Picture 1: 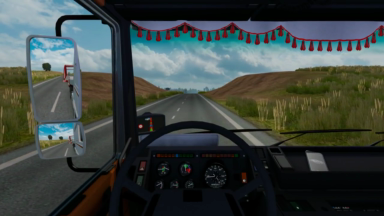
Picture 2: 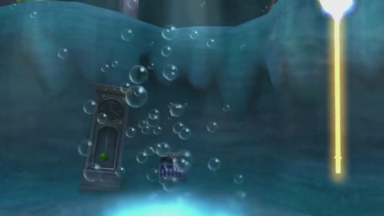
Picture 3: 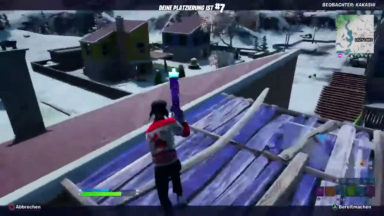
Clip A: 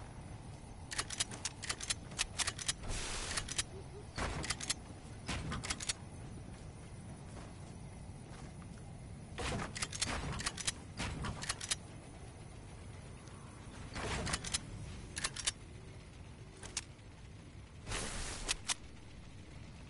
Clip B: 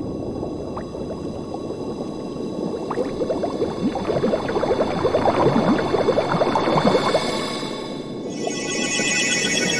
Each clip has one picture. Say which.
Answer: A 3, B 2